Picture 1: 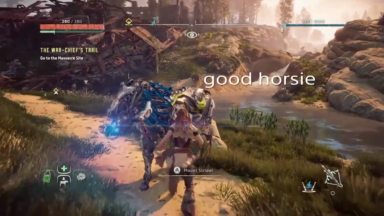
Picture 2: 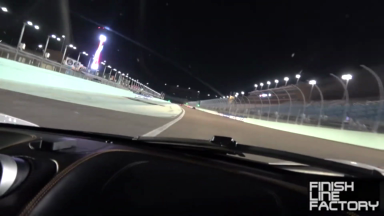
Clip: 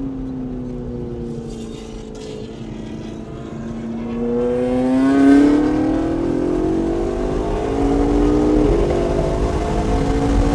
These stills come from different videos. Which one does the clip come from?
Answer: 2